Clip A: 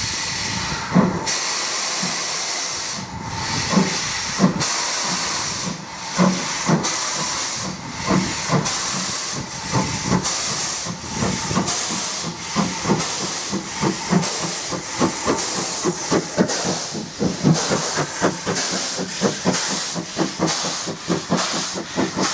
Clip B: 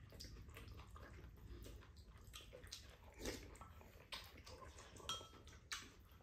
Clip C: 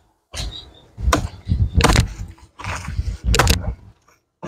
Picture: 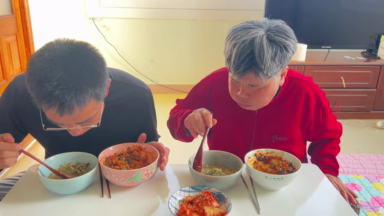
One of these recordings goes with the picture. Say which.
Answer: B